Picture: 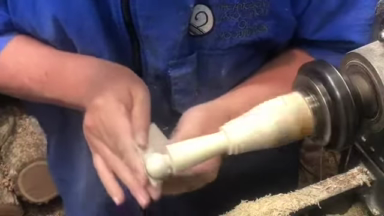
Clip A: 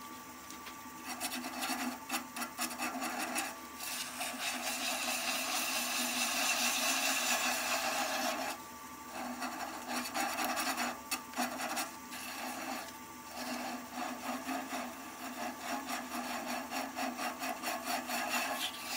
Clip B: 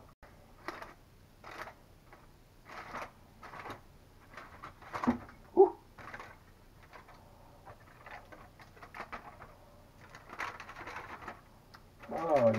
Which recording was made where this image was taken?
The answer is A